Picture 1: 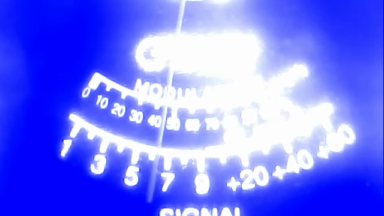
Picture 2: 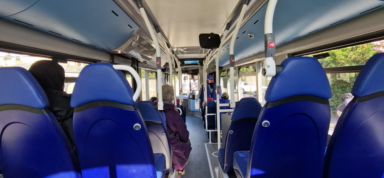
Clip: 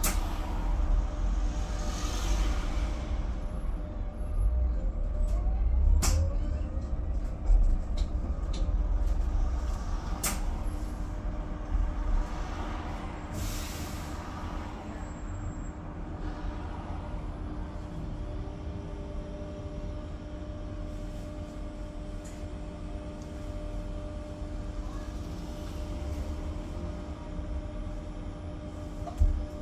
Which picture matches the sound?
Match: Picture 2